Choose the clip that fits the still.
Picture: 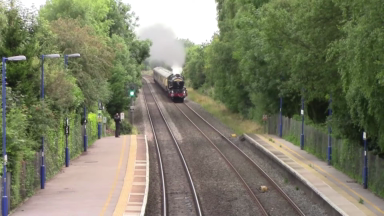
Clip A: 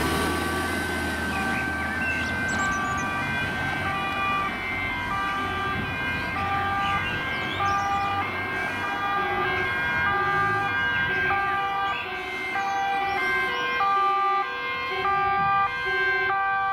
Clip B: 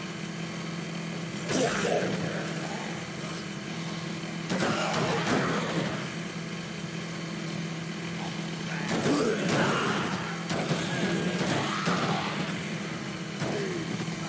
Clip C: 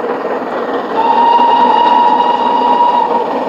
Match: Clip C